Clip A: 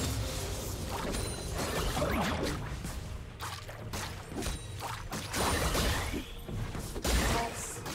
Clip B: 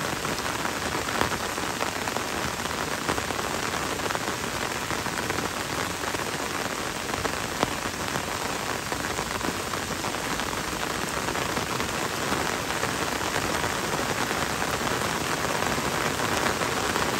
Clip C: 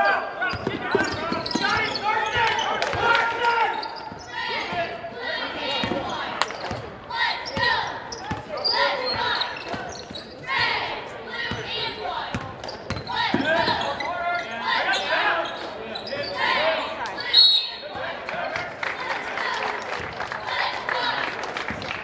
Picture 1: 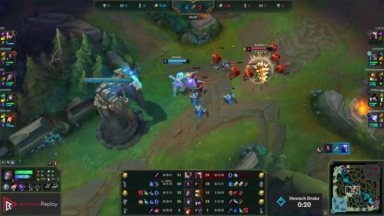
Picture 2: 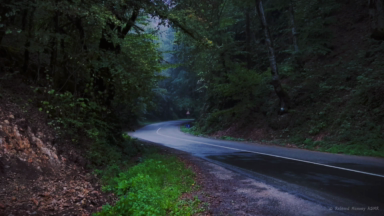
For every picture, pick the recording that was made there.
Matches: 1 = A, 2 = B